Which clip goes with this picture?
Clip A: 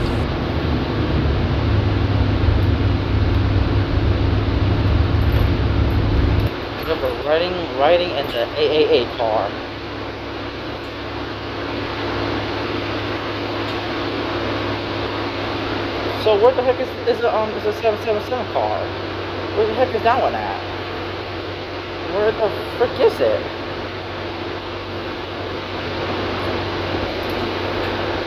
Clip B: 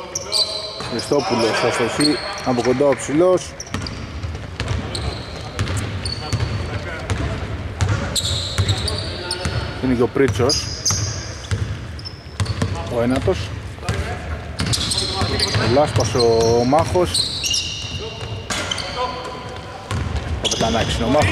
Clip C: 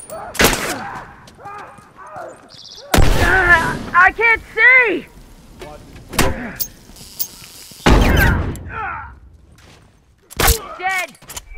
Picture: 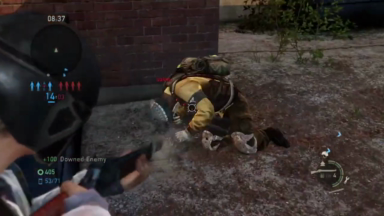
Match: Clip C